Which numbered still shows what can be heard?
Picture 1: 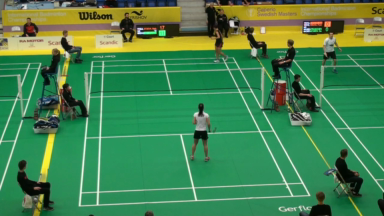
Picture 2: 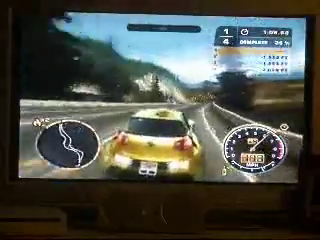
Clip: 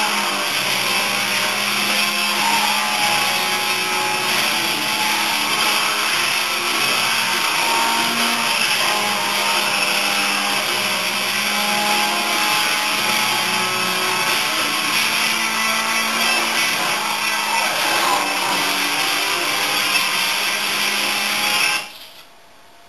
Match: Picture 2